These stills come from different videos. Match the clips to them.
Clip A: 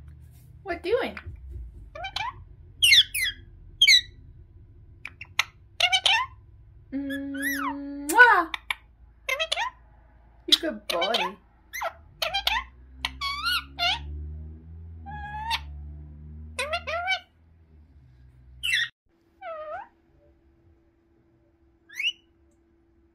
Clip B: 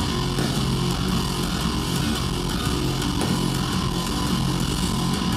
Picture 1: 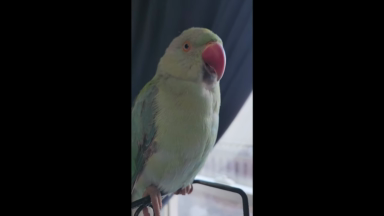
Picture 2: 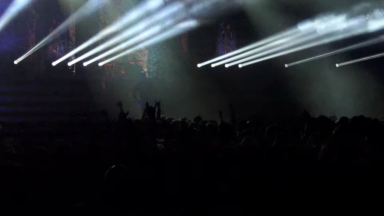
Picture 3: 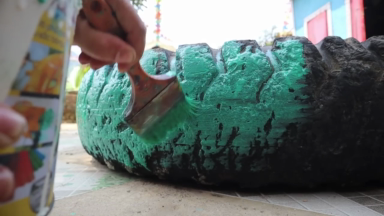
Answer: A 1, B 2